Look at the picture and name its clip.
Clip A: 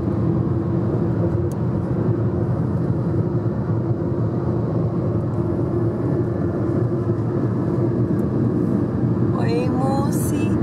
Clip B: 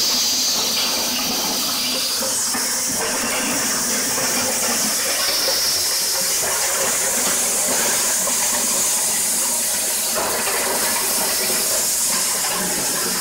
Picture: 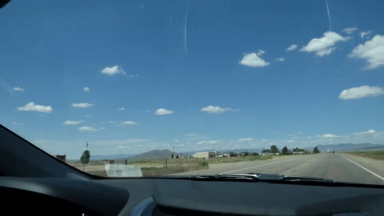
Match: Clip A